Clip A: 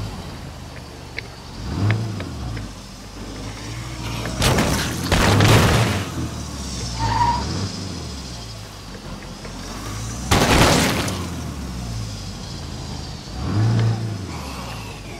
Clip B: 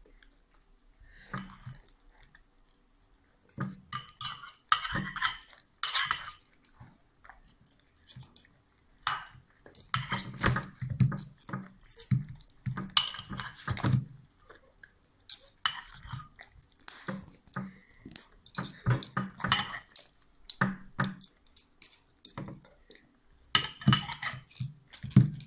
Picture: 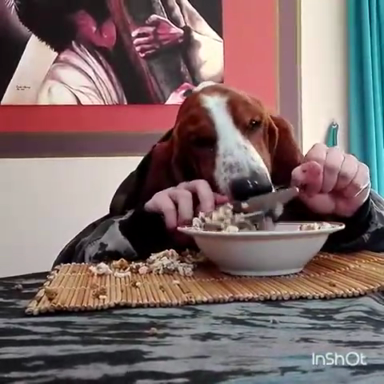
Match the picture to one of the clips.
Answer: B